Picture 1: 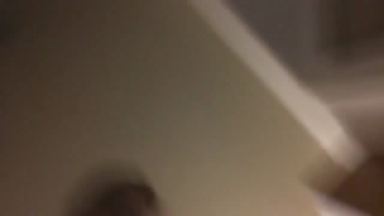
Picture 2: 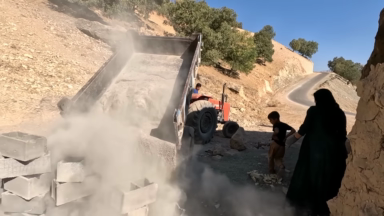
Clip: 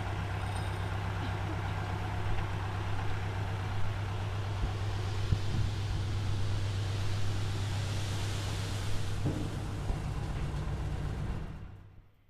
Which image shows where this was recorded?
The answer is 2